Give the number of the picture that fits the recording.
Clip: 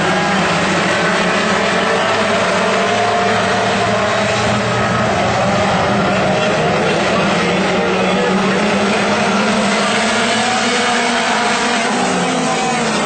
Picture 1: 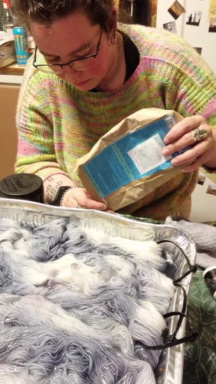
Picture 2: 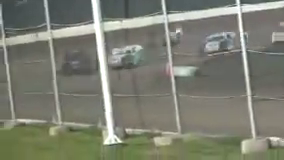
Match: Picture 2